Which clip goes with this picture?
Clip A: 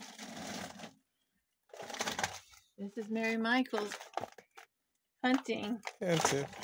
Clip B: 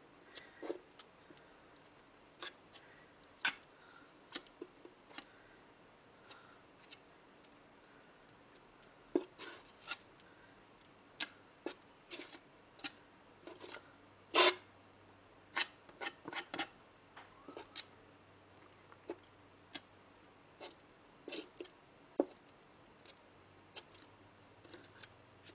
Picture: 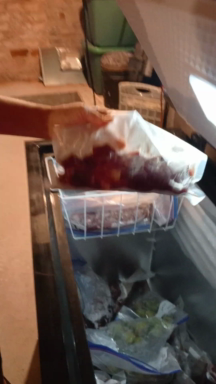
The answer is A